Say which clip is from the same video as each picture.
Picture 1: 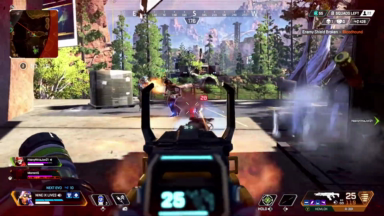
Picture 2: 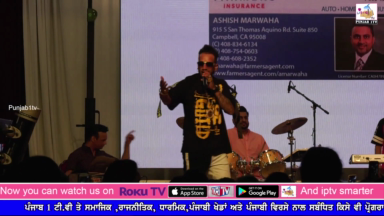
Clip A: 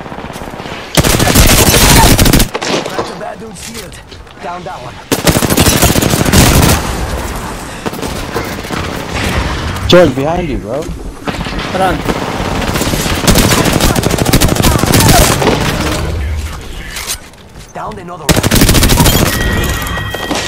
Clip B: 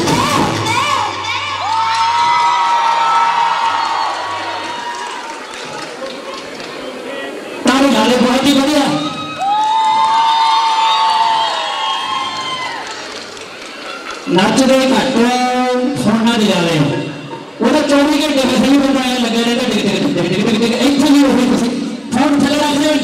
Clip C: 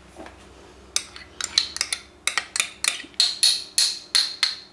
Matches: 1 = A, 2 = B